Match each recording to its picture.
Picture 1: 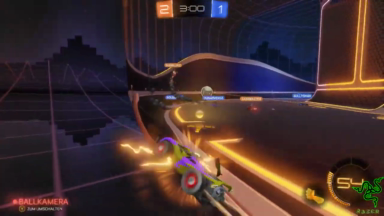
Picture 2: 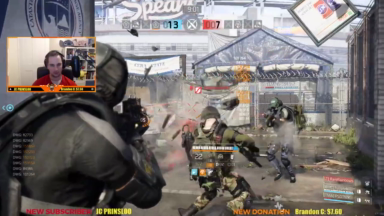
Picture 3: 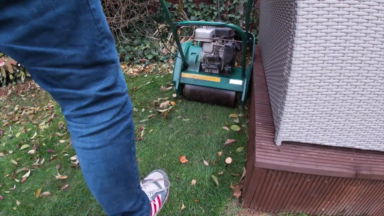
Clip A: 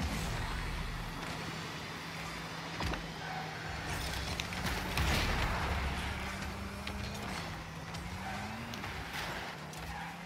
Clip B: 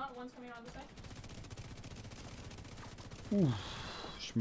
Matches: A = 1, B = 2